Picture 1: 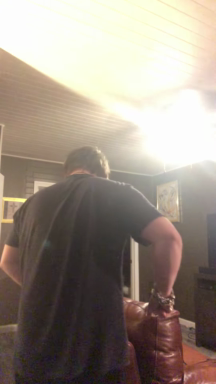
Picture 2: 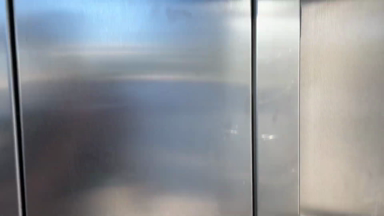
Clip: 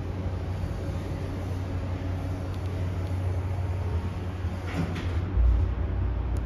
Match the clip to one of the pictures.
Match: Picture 2